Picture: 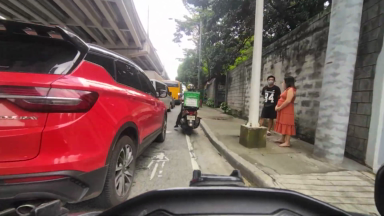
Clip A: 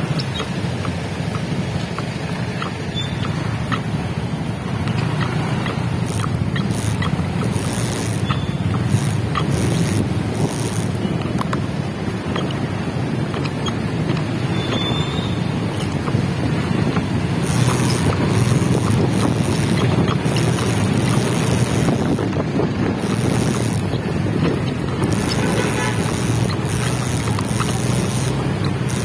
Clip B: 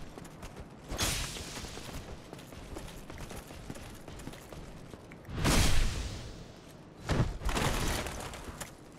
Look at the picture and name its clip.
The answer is A